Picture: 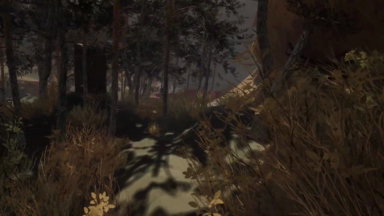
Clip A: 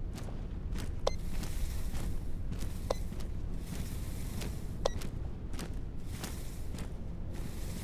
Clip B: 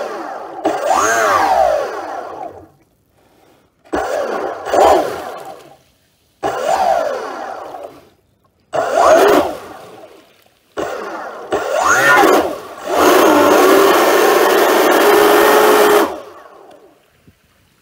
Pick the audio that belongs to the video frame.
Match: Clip A